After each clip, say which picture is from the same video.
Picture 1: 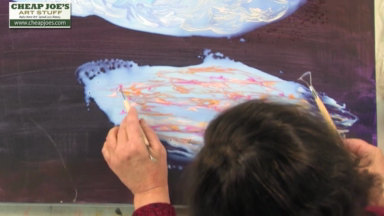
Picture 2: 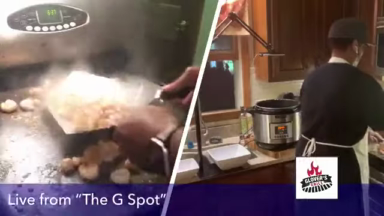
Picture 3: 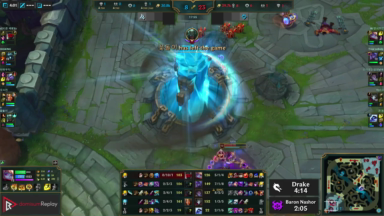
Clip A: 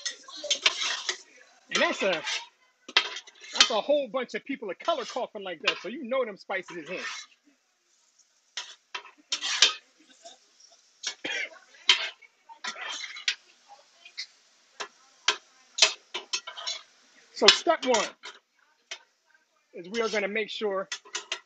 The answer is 2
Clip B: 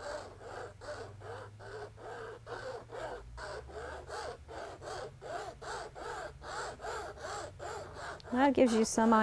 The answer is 1